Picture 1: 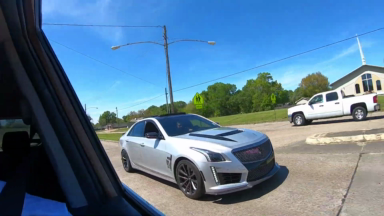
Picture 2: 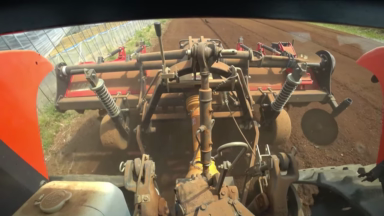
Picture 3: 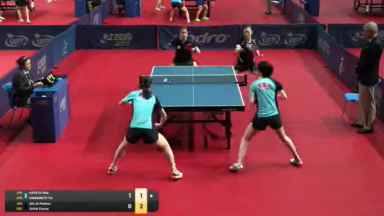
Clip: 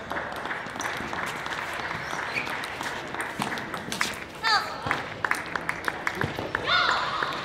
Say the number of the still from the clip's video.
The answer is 3